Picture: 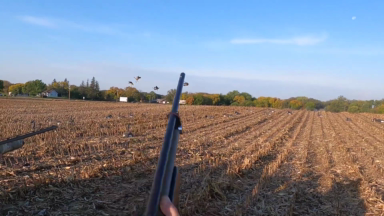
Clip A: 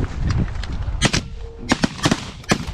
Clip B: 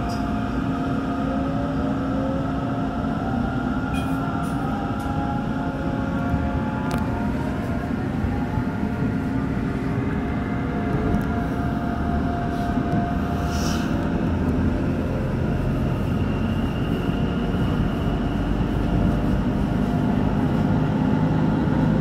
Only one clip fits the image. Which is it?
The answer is A